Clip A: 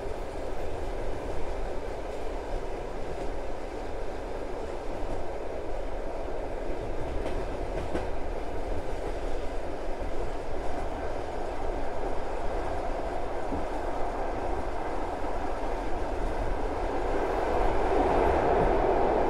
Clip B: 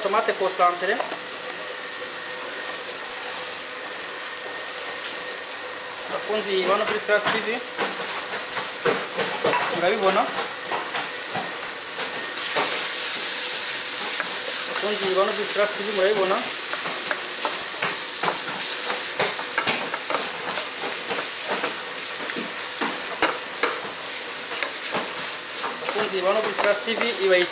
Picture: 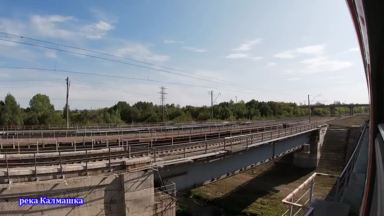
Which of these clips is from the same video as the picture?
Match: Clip A